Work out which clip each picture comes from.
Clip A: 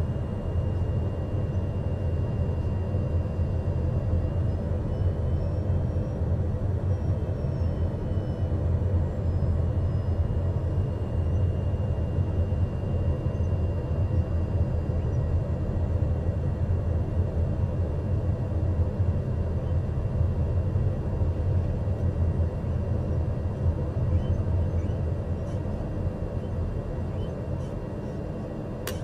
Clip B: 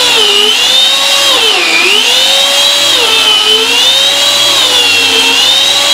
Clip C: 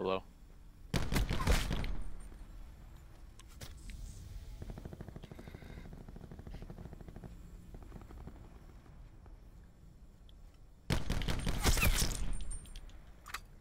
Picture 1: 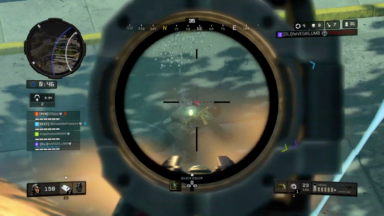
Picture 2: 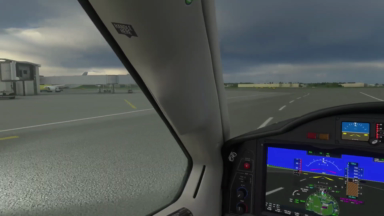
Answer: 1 C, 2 A